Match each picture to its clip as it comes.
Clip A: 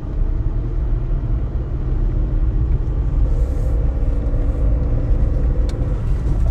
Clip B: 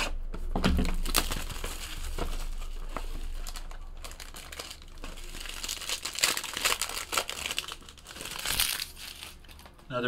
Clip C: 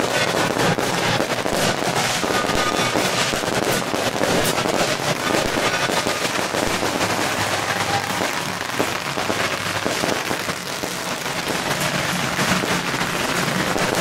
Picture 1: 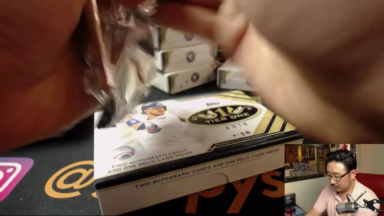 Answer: B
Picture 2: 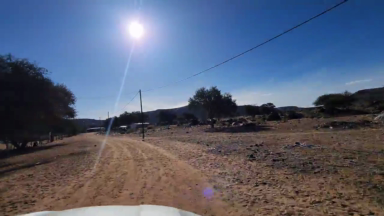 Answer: A